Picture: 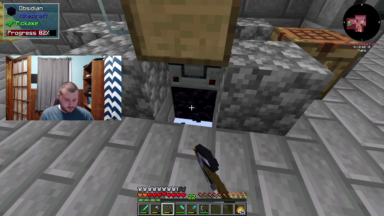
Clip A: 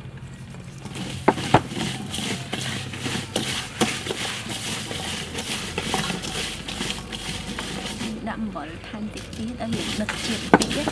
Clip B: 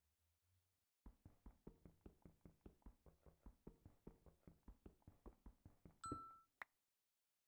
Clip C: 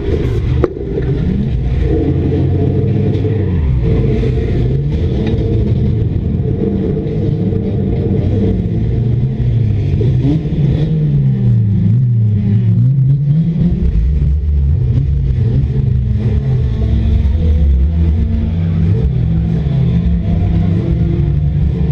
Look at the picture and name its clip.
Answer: B